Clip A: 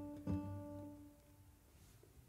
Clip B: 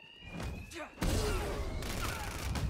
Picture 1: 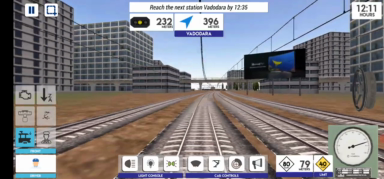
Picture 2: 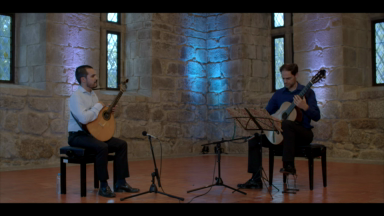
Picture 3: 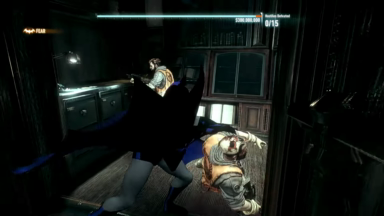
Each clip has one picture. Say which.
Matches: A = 2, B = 3